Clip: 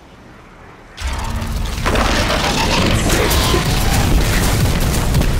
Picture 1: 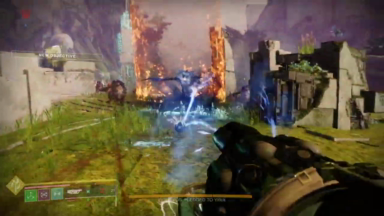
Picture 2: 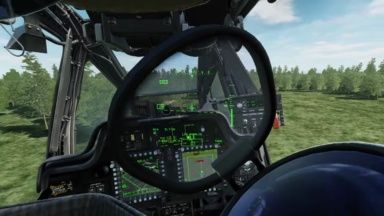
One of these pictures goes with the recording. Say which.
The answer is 1